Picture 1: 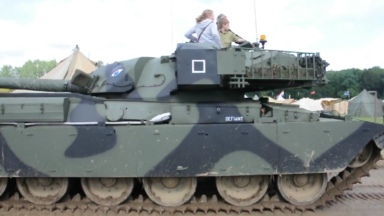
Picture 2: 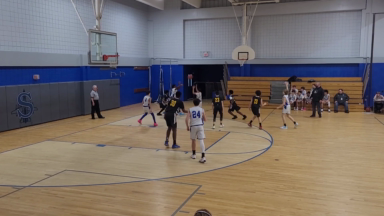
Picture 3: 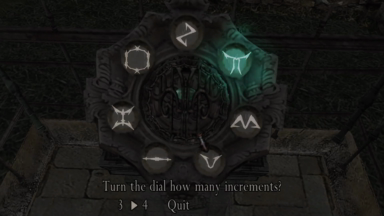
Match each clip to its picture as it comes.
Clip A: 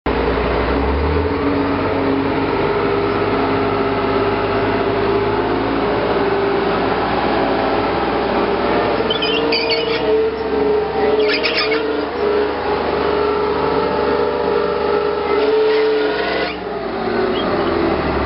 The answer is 1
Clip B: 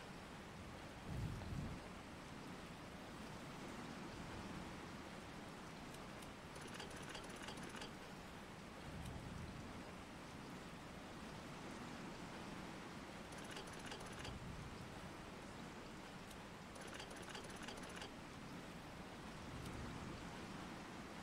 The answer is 3